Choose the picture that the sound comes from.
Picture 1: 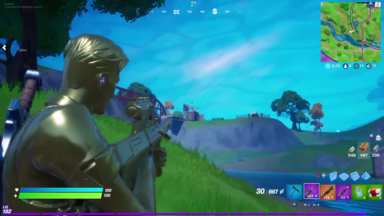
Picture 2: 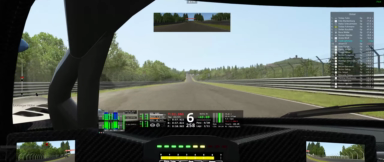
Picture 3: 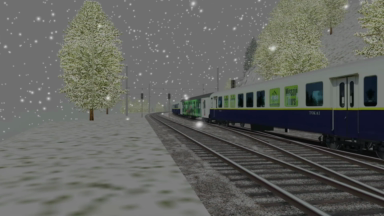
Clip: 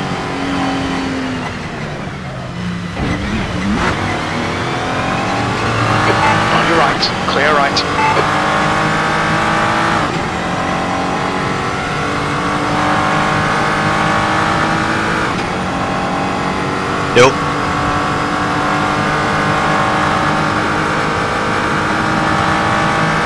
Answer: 2